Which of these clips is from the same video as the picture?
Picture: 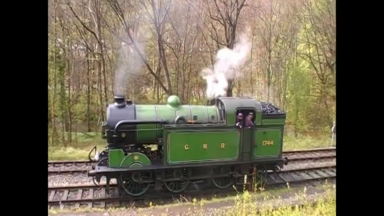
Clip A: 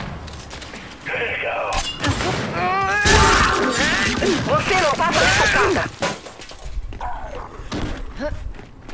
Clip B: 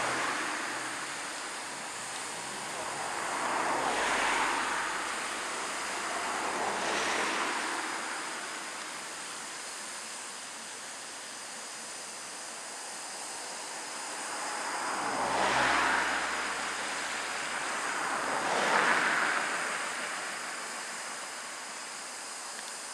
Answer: B